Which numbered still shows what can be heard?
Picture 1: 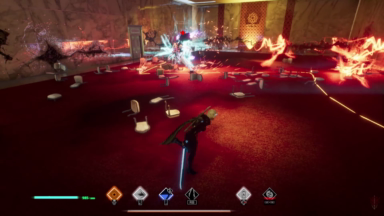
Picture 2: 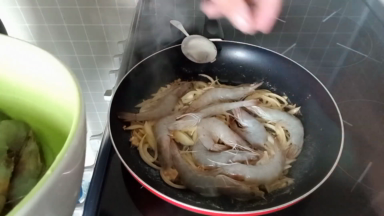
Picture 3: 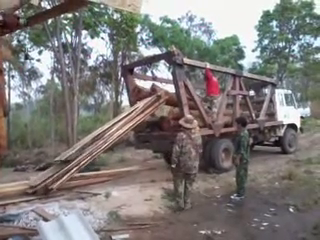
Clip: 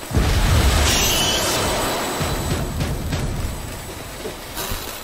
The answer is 1